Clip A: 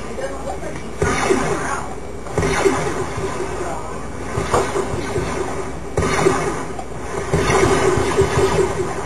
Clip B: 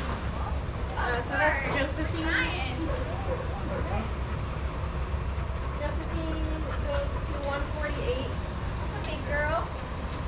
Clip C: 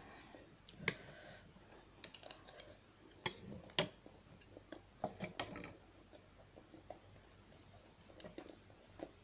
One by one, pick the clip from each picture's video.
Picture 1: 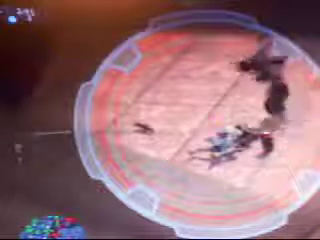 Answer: A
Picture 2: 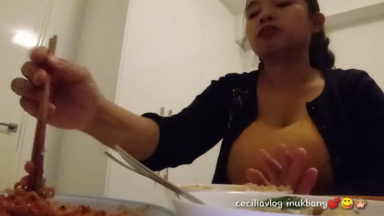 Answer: C